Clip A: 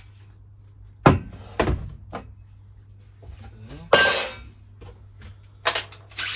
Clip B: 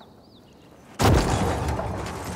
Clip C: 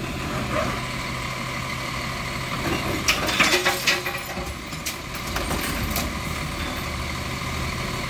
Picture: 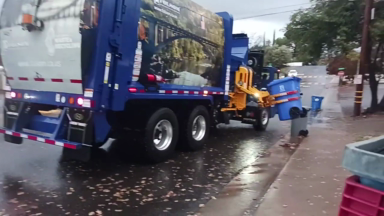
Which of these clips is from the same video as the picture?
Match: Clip C